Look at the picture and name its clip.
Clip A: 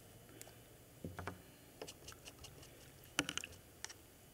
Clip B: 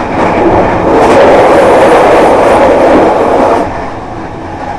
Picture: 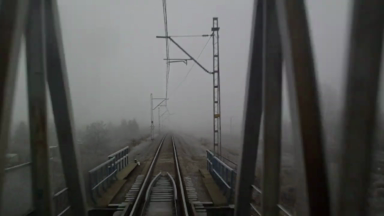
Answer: B